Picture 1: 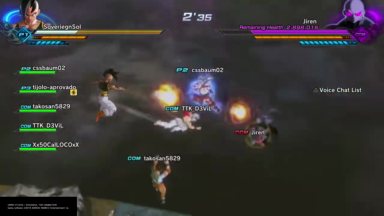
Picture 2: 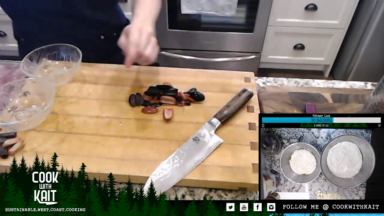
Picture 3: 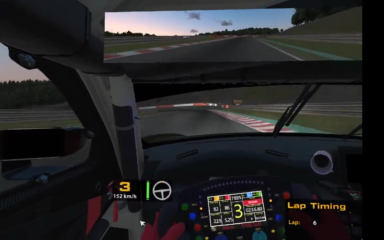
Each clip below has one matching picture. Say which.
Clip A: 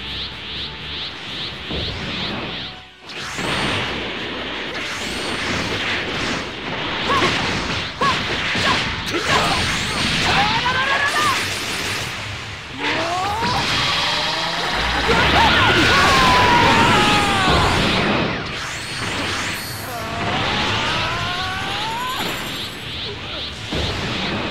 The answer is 1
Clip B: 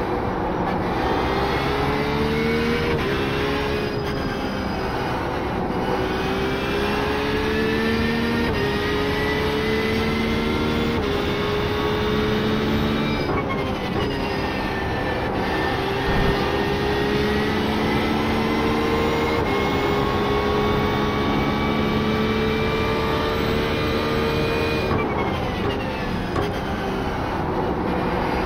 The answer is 3